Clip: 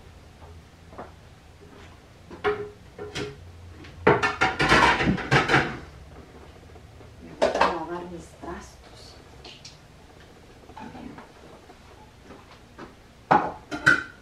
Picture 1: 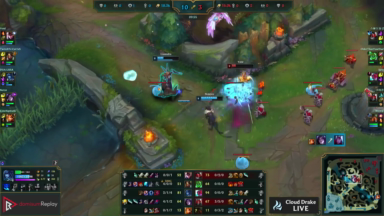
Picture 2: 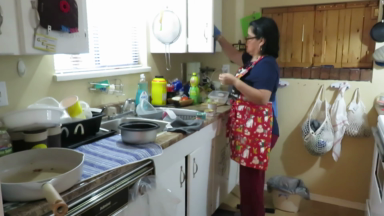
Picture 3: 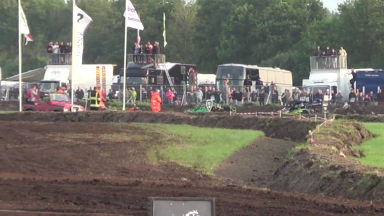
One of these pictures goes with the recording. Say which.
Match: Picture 2